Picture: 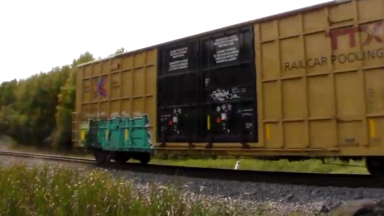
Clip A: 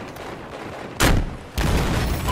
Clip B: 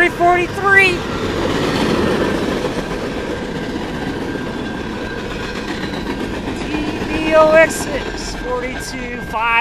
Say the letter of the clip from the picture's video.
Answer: B